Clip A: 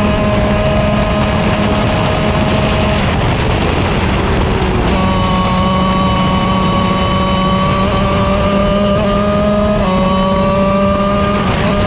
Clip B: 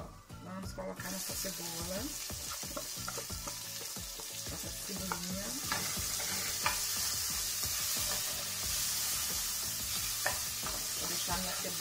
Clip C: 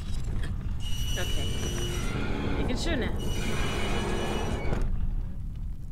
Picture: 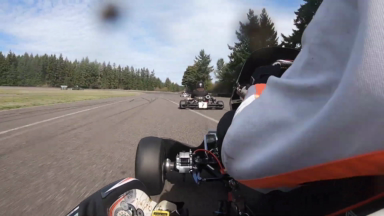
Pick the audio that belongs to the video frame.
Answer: A